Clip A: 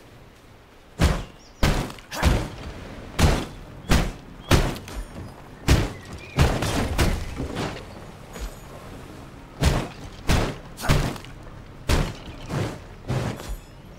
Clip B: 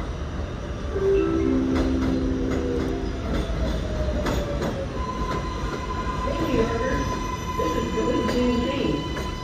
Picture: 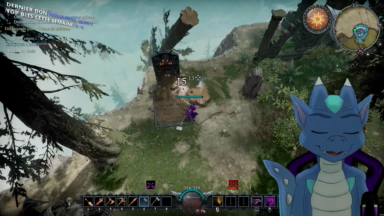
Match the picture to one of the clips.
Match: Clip A